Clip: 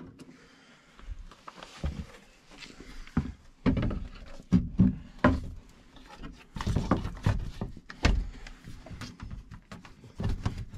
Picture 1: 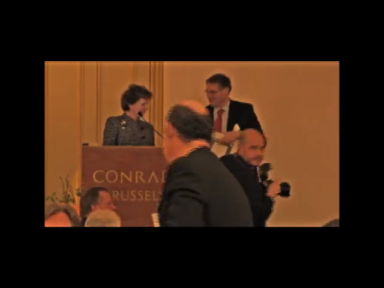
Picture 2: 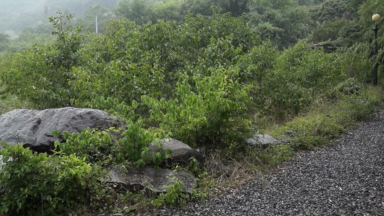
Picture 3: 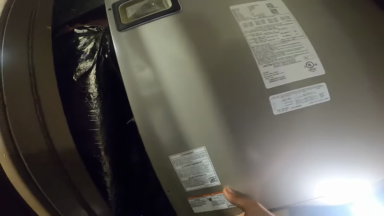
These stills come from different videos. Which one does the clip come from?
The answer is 3